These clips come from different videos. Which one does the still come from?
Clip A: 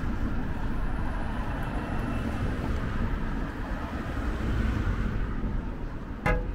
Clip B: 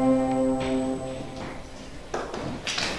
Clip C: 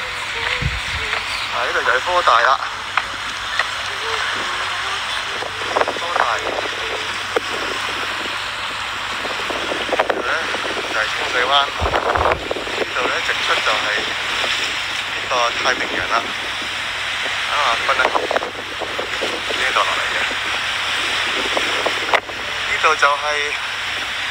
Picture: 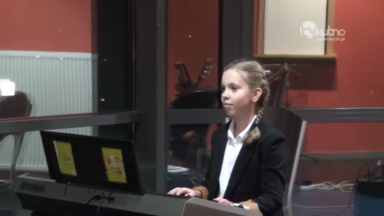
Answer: B